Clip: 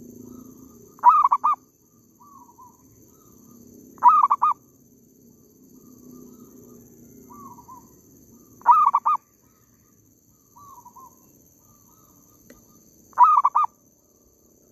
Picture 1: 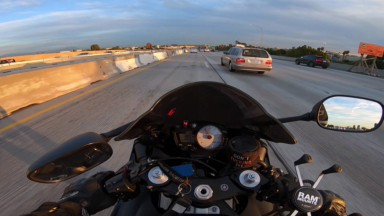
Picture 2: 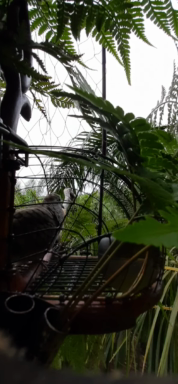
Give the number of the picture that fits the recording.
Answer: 2